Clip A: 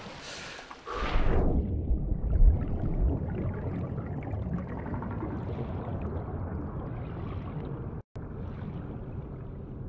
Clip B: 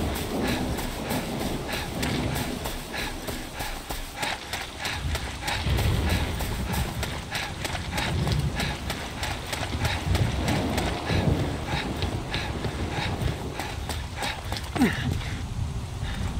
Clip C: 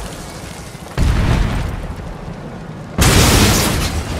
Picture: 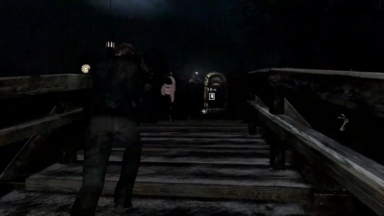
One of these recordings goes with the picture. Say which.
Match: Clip B